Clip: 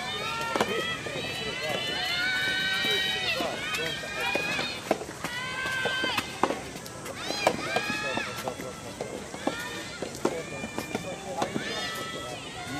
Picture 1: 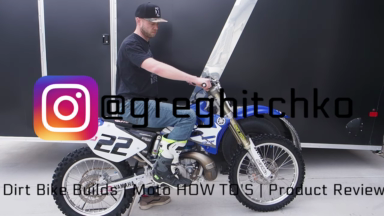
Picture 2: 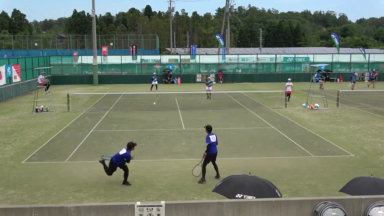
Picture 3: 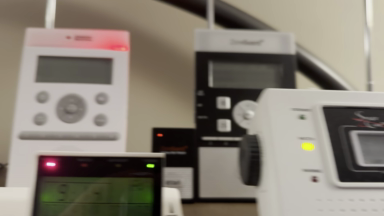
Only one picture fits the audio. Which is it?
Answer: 2